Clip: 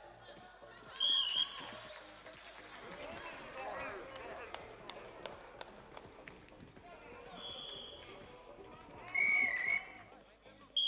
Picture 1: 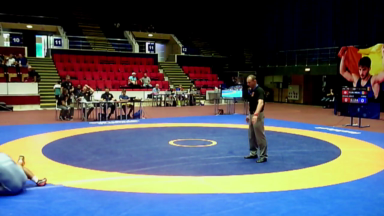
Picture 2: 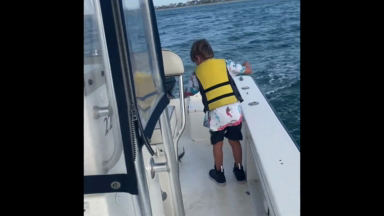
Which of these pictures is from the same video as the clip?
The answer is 1